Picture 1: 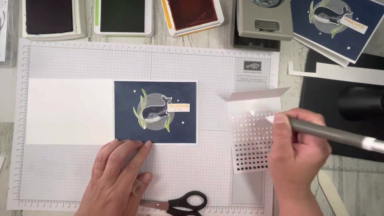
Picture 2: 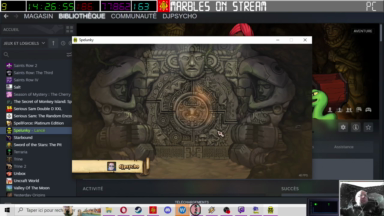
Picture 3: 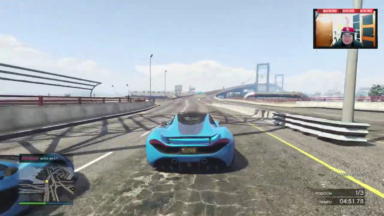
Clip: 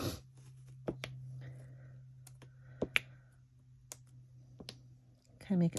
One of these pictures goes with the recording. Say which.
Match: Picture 1